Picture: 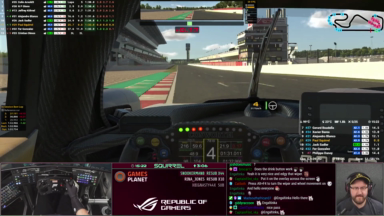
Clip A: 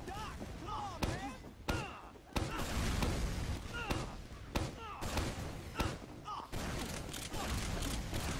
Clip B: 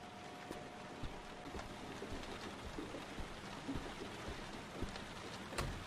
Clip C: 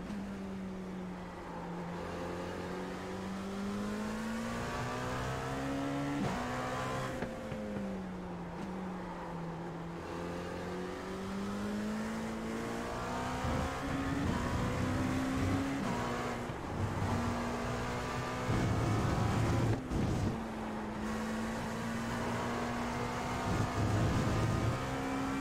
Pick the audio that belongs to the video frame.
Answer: C